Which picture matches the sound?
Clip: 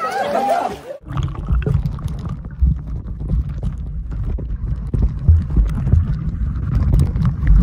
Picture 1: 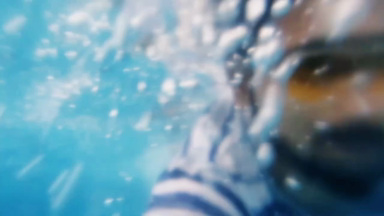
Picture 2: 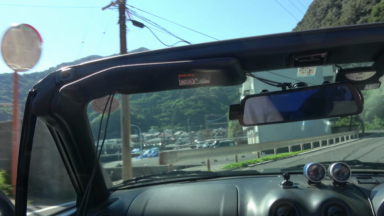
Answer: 1